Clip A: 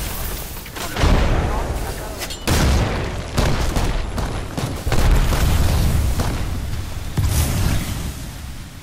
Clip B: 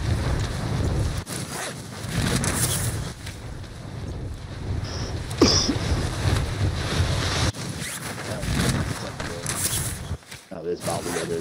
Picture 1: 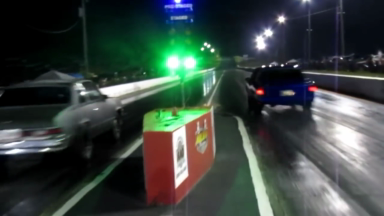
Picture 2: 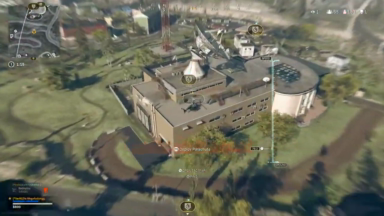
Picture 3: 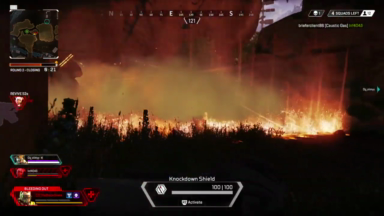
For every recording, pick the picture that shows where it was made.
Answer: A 3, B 2